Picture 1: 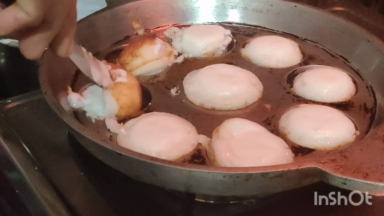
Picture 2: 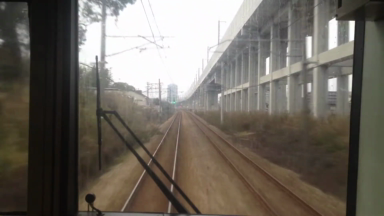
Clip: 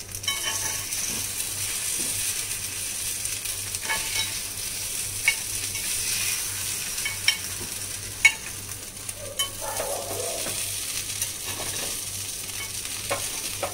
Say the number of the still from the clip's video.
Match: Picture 1